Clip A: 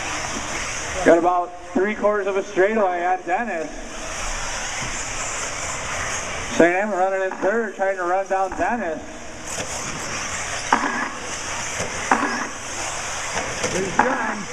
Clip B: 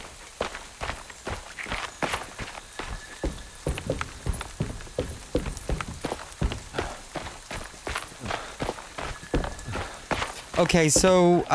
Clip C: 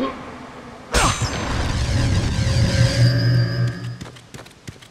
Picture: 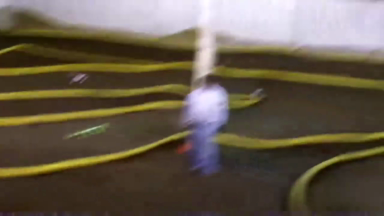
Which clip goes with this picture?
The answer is A